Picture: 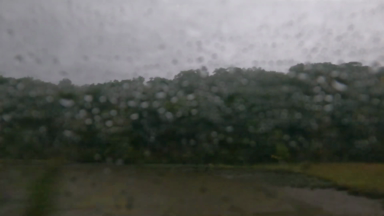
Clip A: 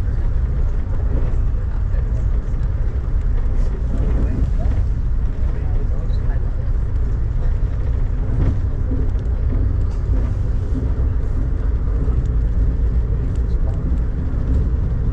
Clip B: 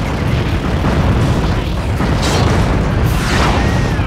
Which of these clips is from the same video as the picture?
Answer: A